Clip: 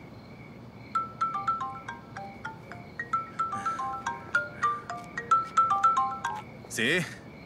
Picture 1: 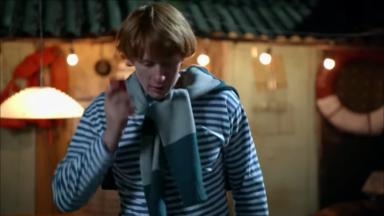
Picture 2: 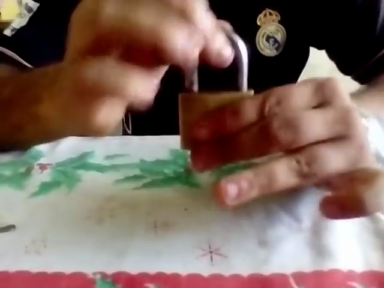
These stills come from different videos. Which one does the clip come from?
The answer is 1